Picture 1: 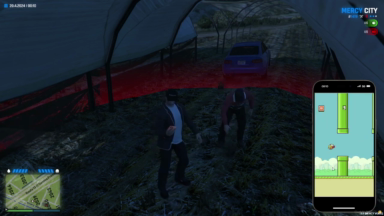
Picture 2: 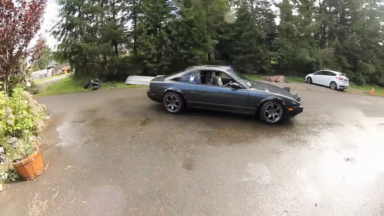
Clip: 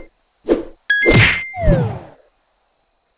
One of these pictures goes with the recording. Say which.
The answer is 1